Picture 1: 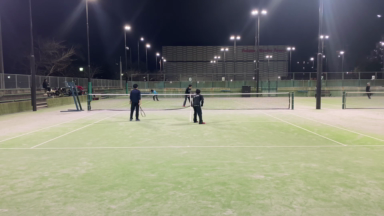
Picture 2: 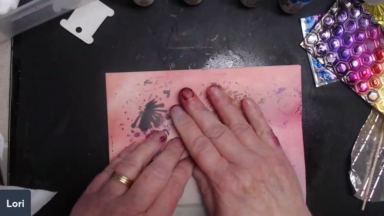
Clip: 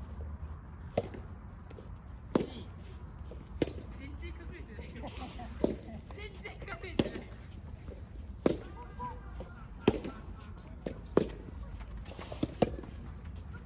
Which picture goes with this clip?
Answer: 1